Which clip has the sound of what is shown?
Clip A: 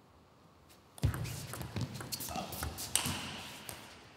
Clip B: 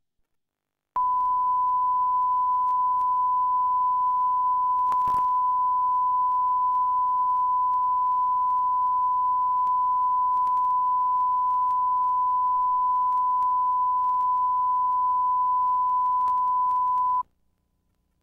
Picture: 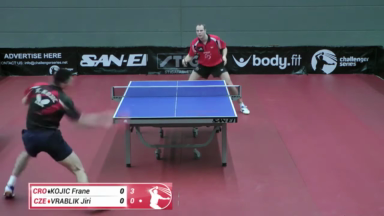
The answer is A